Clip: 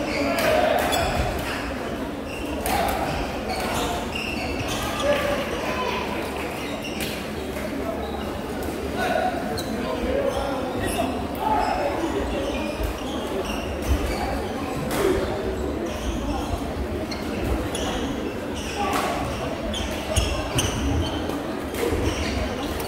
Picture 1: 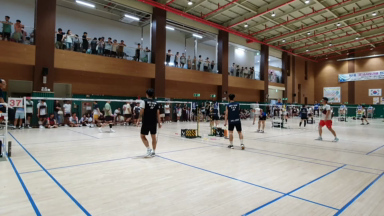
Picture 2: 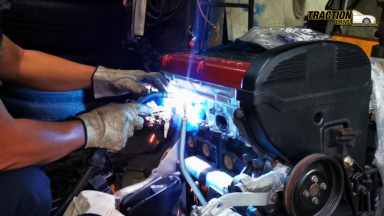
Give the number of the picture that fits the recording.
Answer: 1